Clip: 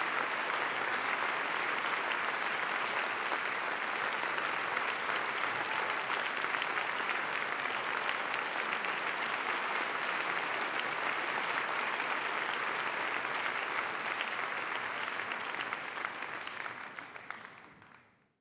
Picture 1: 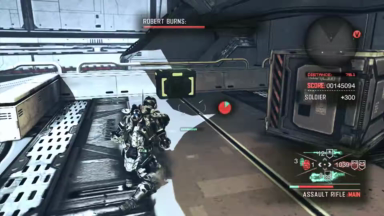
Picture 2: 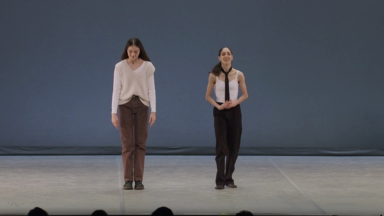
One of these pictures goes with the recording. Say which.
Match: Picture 2